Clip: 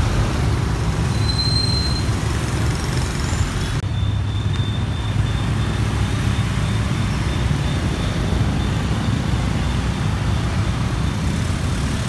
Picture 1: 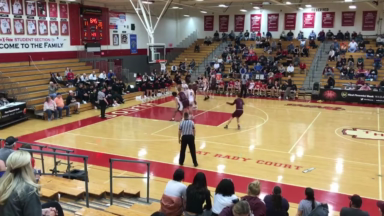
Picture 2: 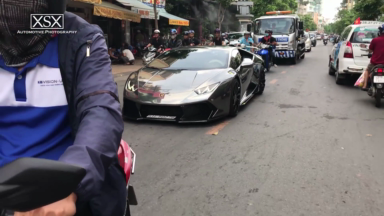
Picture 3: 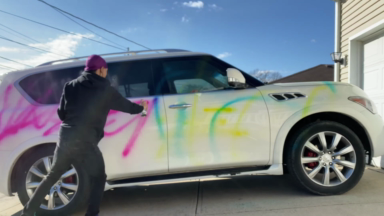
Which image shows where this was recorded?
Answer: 2